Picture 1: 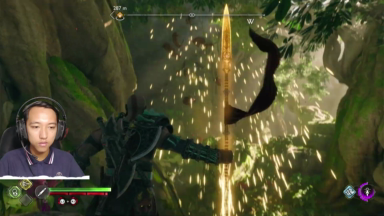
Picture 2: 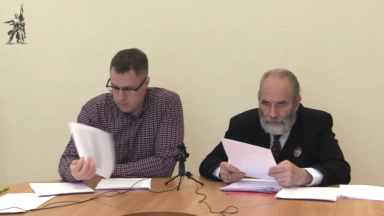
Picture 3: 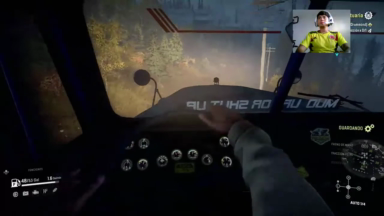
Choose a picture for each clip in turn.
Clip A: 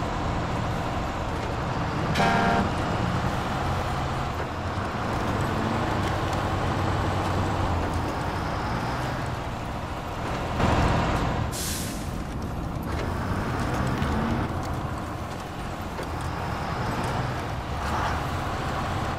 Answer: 3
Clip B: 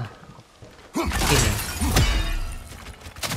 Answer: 1